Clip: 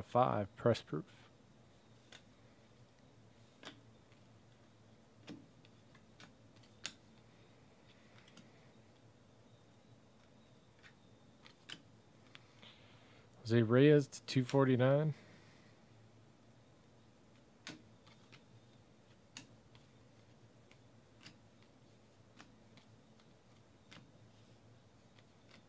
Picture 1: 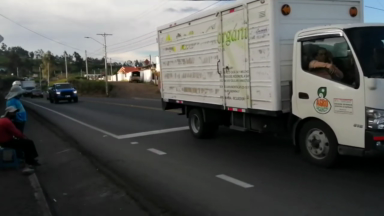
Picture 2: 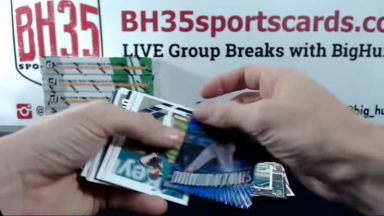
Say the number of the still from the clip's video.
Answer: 2